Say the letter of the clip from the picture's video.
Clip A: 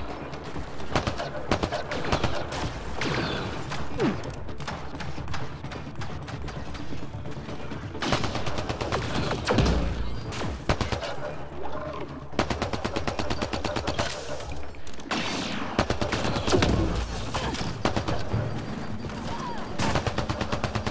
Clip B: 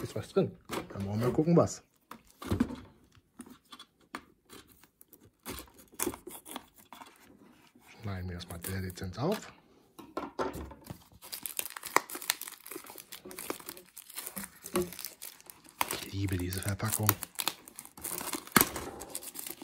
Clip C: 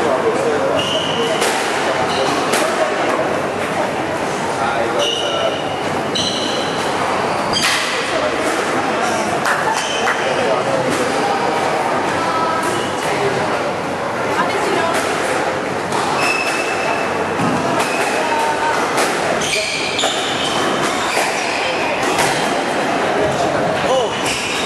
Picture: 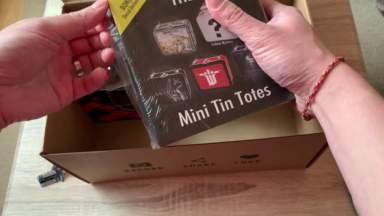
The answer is B